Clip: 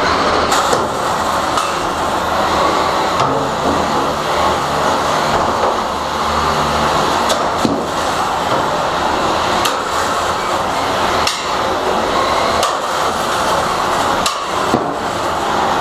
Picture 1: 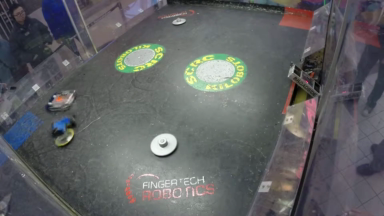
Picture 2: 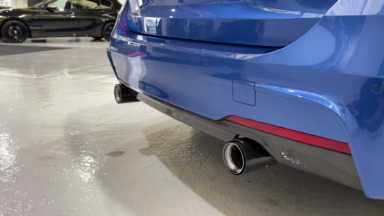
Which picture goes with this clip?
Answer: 1